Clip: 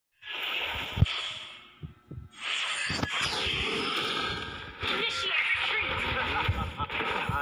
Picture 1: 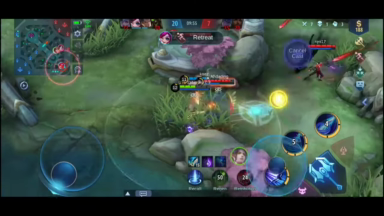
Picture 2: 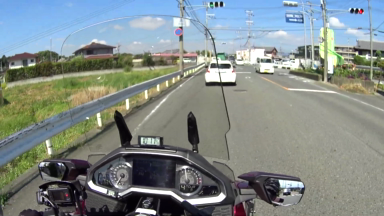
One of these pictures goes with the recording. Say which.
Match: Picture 1